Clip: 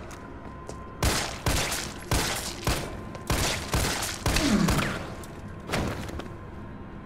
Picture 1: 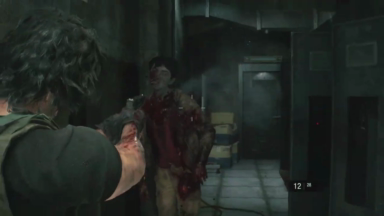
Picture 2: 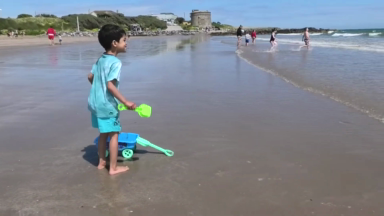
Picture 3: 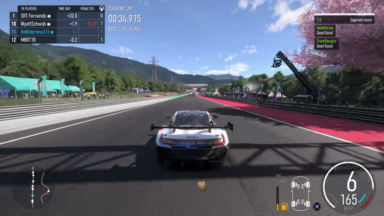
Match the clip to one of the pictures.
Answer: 1